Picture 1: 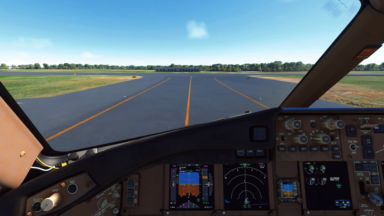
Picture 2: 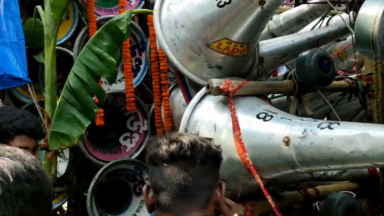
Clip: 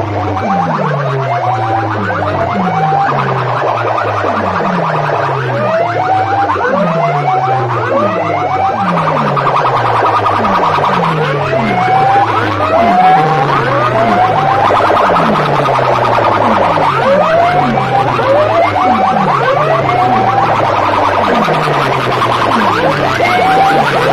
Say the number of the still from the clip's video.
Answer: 2